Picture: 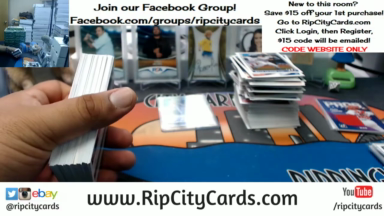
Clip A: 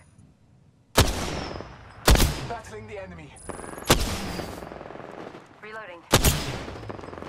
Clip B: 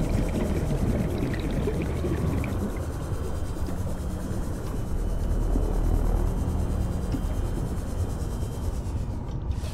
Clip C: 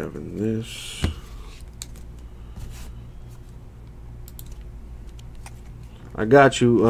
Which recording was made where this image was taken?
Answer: C